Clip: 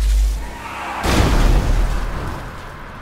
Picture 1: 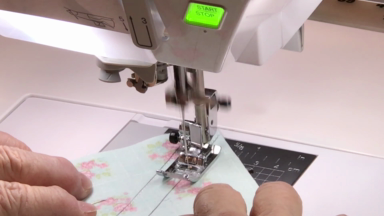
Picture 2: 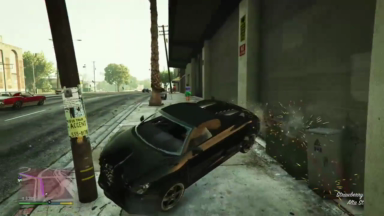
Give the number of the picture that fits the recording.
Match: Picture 2